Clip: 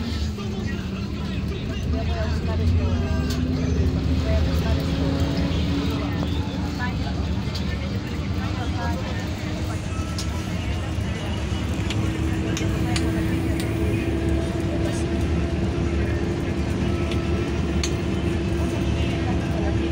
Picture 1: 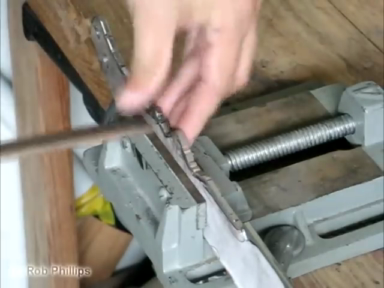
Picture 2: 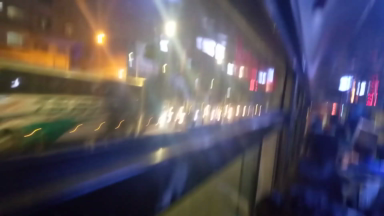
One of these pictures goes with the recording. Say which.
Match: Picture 2